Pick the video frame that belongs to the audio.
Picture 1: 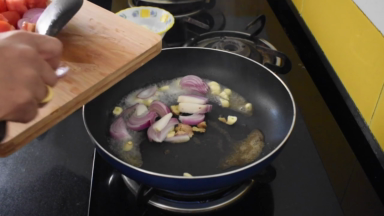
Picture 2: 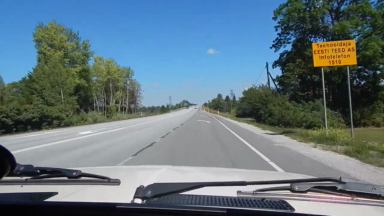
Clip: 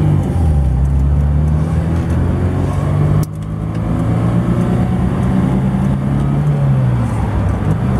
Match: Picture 2